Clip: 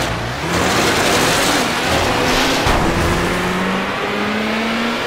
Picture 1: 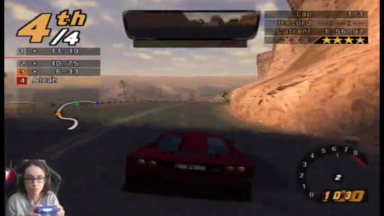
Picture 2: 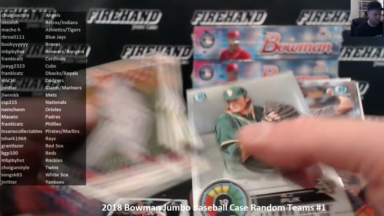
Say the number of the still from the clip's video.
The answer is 1